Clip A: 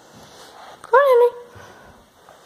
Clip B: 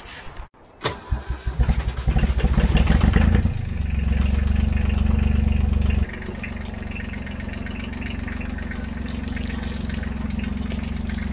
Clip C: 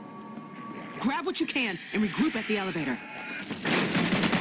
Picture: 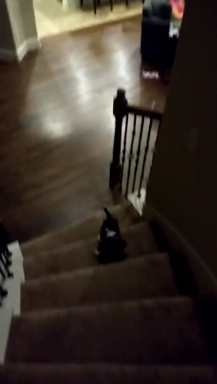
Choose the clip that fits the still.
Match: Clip A